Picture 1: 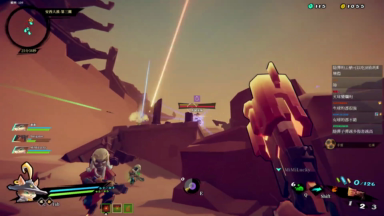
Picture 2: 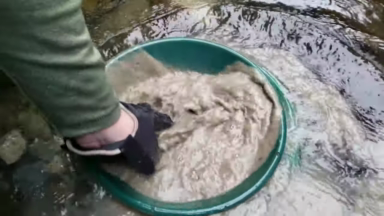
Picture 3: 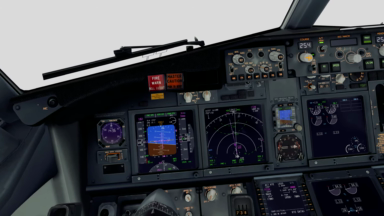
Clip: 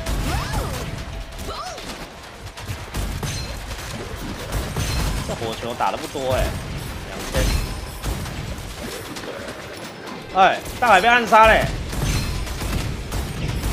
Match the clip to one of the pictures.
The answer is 1